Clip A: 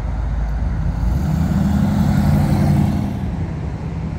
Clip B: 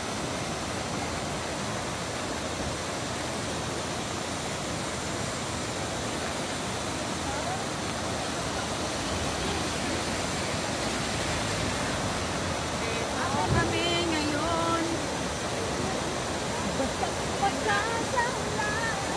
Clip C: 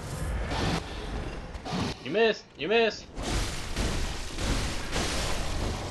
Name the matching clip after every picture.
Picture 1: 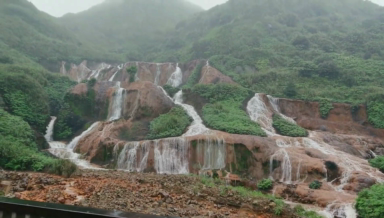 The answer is B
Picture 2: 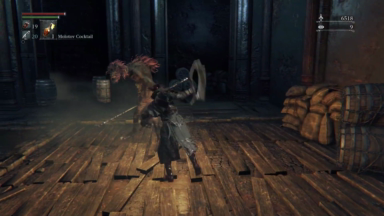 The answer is C